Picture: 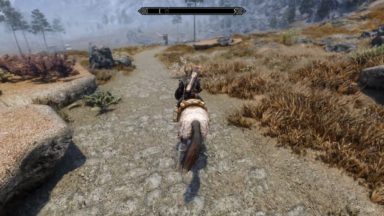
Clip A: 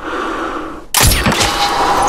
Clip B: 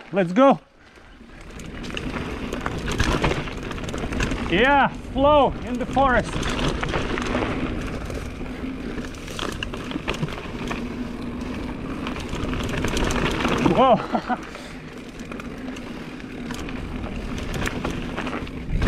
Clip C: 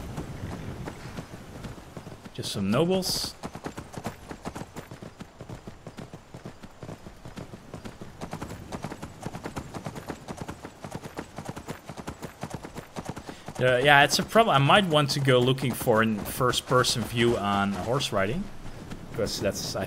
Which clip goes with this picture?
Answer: C